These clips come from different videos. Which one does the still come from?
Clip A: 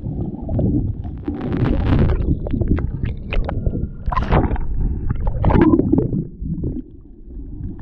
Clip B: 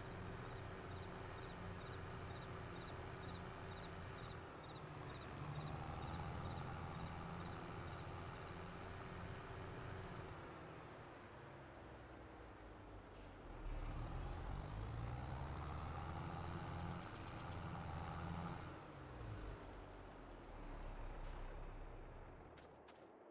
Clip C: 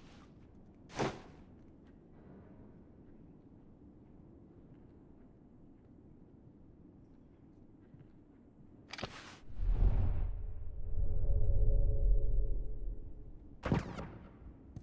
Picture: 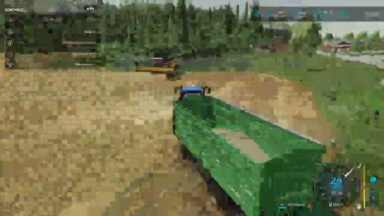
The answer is B